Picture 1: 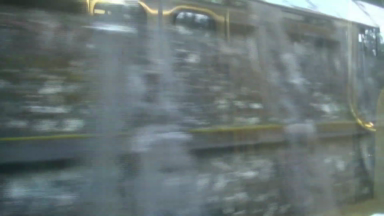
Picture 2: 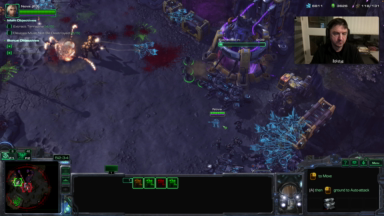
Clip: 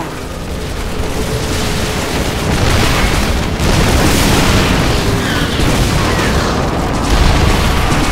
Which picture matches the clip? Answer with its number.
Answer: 2